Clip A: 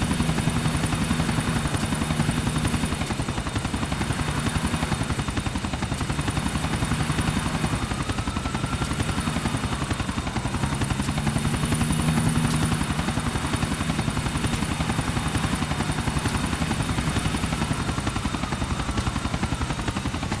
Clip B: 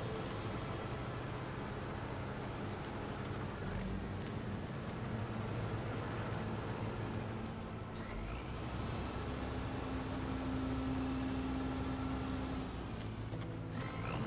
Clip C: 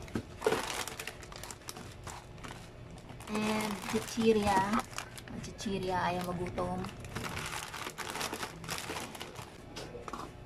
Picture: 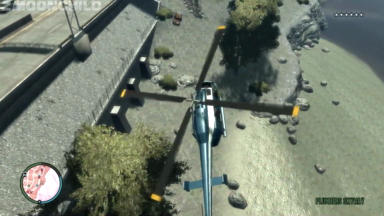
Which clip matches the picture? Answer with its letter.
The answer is A